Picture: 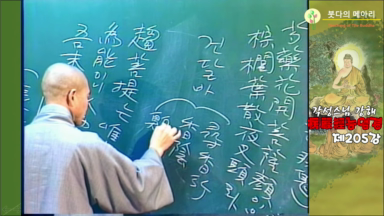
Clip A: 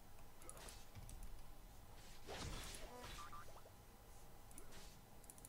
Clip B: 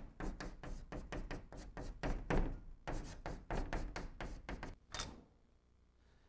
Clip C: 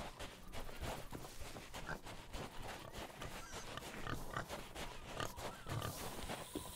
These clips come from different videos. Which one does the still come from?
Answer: B